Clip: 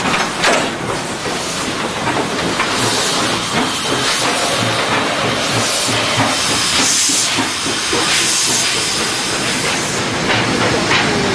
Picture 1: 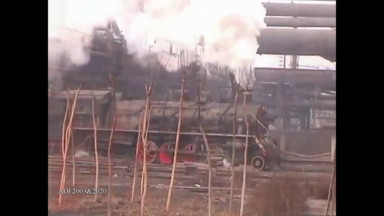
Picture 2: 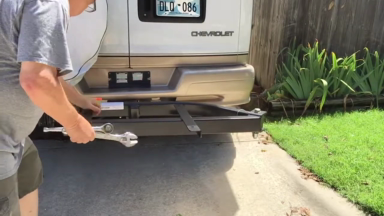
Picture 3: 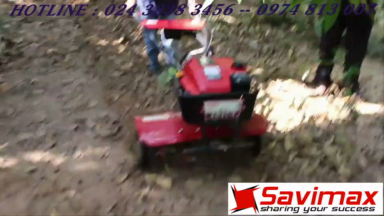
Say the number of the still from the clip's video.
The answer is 1